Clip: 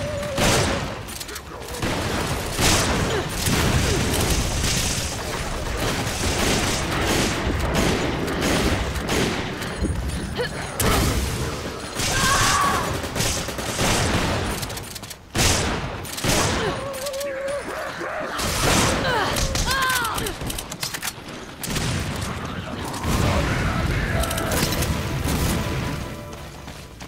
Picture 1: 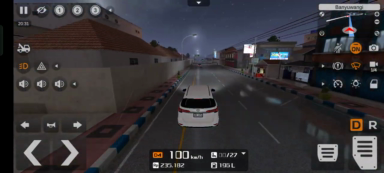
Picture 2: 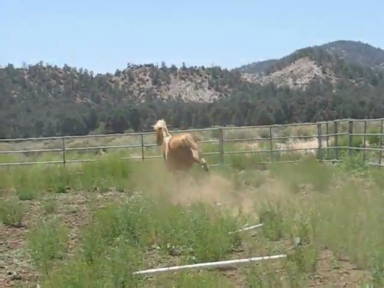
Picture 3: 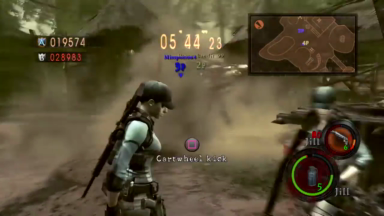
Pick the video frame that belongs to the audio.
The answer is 3